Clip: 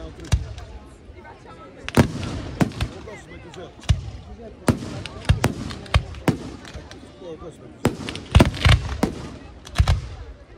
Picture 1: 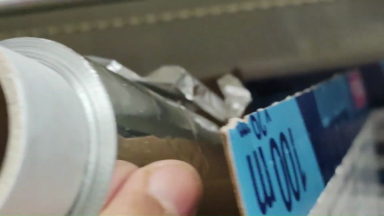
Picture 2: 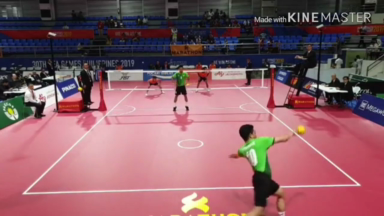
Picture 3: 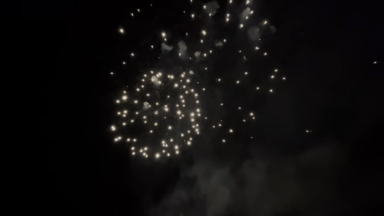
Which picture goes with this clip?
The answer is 3